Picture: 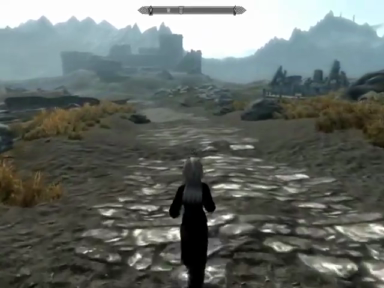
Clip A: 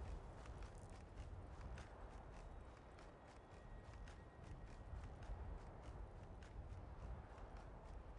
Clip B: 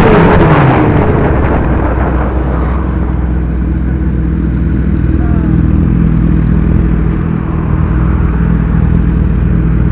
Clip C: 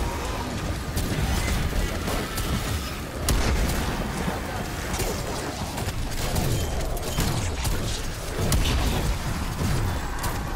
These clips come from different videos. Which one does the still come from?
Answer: A